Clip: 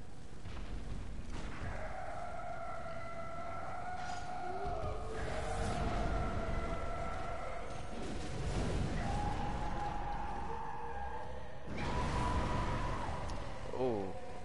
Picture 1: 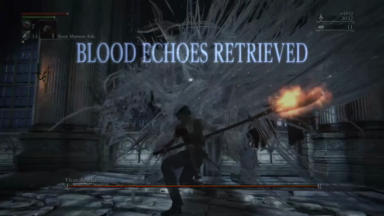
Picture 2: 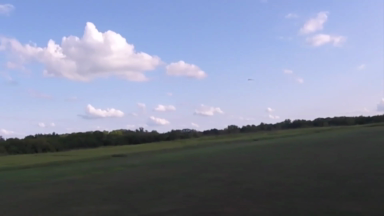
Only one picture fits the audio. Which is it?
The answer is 1